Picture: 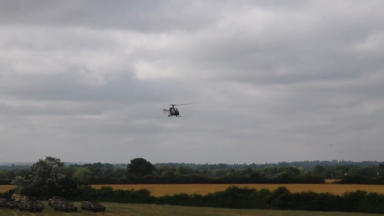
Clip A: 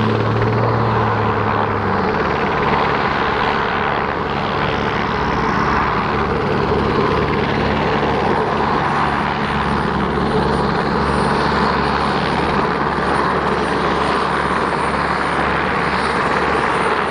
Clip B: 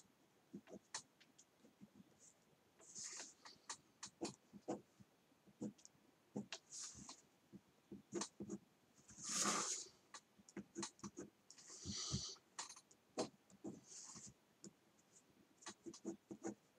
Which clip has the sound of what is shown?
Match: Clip A